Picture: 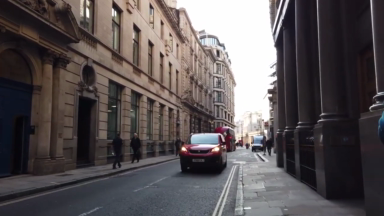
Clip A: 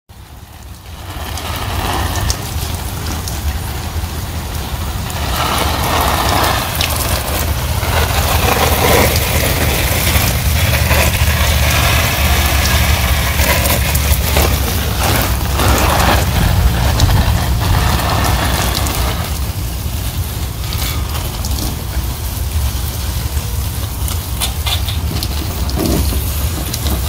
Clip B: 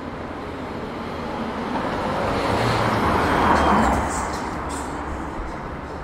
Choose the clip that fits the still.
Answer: B